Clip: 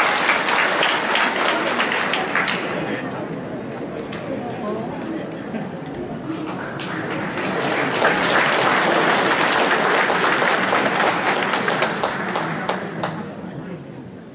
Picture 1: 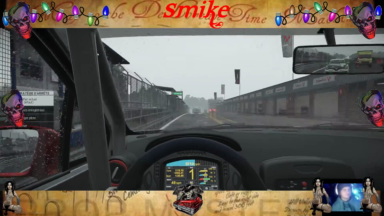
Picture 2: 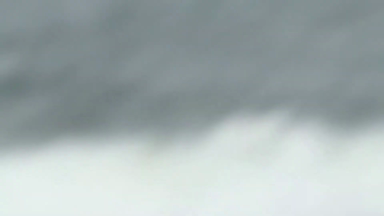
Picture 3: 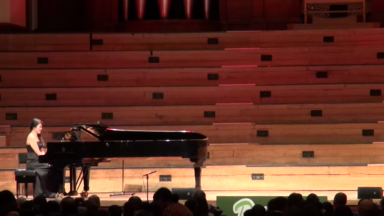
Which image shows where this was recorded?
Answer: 3